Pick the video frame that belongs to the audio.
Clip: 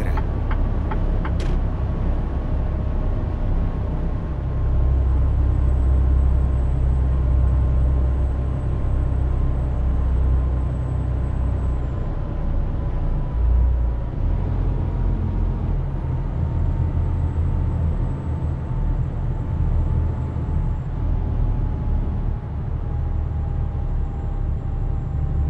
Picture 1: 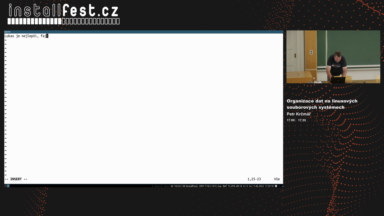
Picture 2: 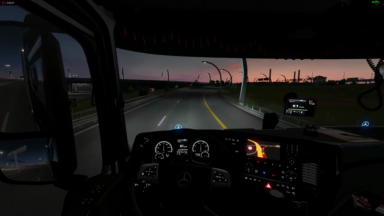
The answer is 2